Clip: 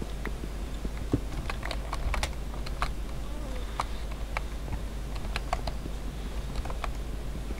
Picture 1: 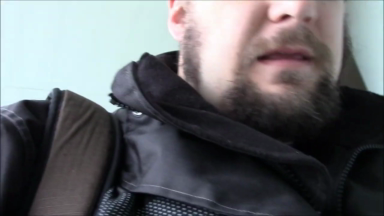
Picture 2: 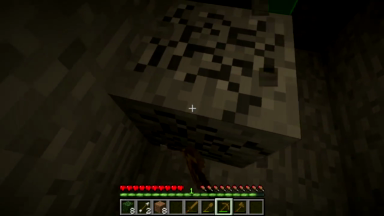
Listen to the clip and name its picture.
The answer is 2